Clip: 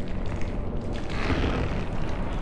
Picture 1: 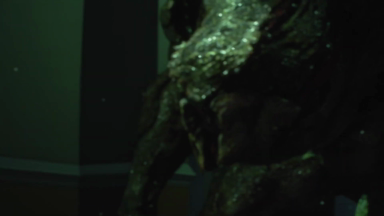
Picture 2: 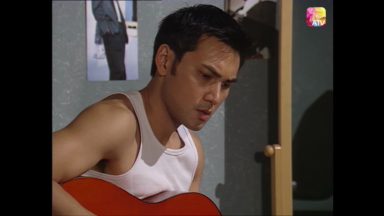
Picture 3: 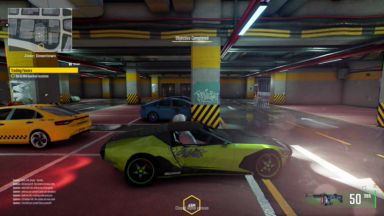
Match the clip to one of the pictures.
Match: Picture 1